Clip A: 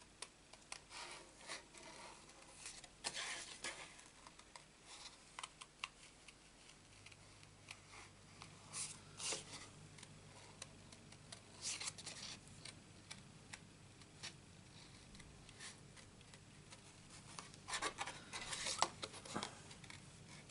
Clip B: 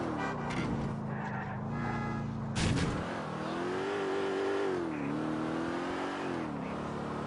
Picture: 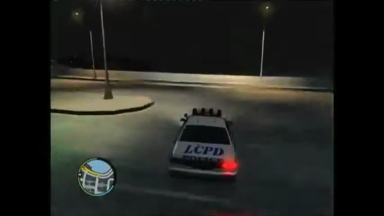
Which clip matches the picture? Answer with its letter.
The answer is B